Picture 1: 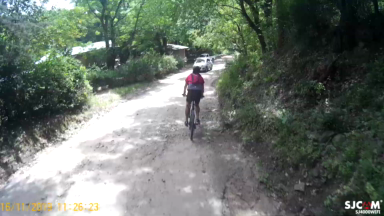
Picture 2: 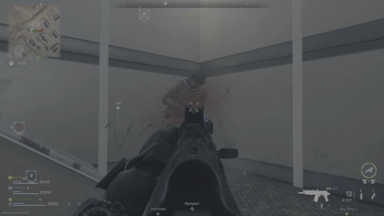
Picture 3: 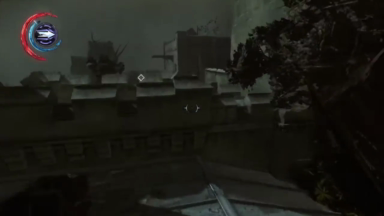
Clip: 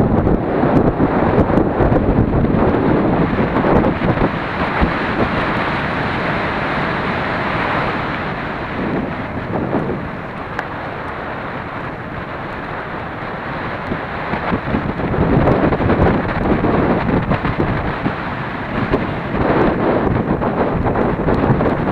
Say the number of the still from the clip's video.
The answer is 1